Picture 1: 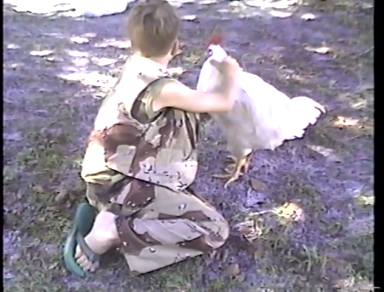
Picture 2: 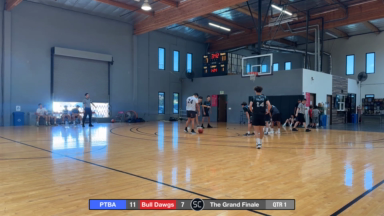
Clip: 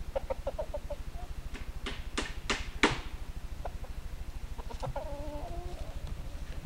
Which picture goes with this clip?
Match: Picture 1